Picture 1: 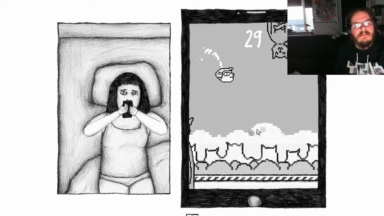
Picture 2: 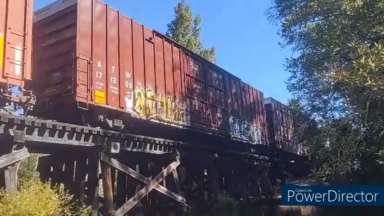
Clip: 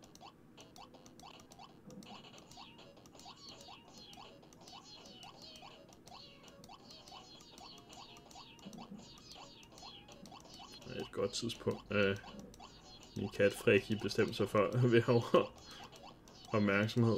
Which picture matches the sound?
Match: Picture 1